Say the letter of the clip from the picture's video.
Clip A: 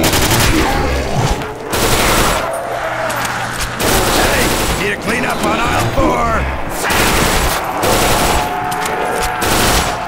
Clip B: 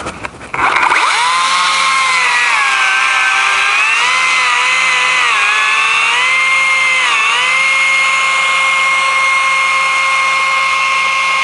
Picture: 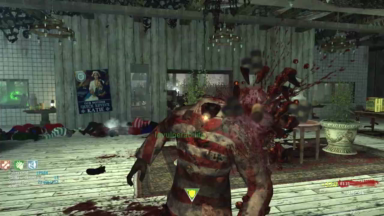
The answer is A